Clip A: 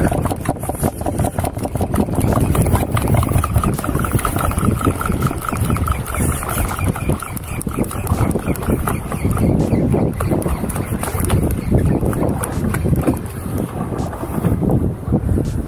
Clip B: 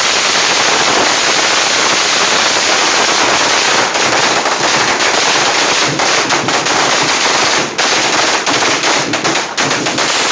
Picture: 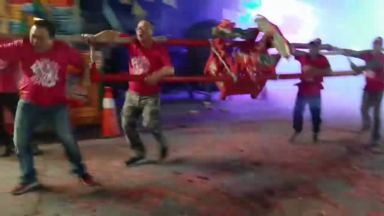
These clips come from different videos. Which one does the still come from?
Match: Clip B